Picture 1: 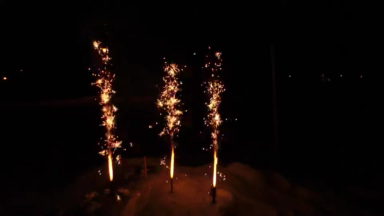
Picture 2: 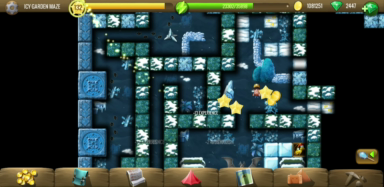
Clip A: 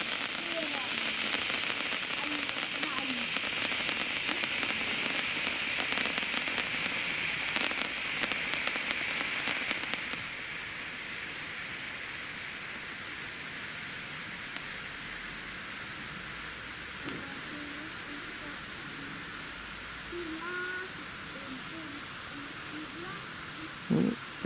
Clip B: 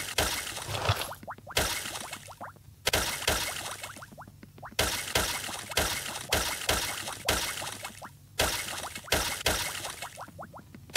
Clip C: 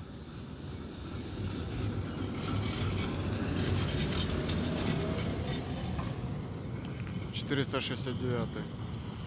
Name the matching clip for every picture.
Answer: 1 A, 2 B